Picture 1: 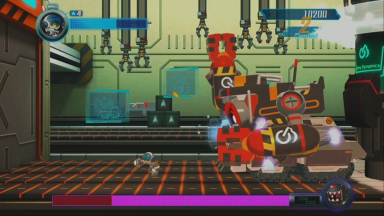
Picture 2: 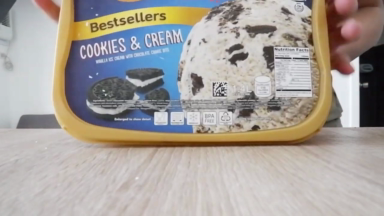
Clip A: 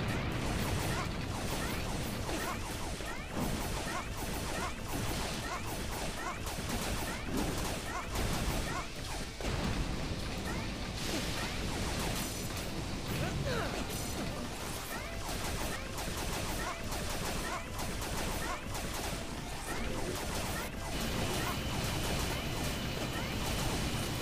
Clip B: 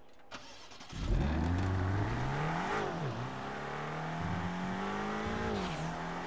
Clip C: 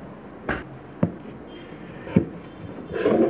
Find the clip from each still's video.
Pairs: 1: A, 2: C